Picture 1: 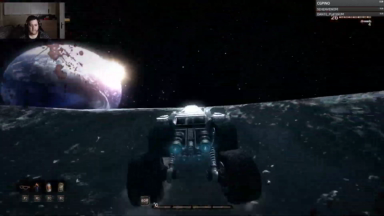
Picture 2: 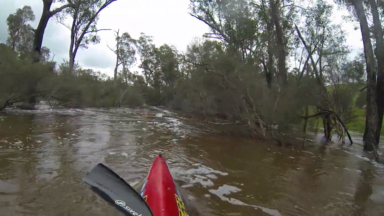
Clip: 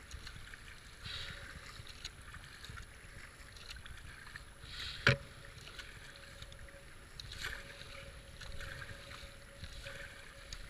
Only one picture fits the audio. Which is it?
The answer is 2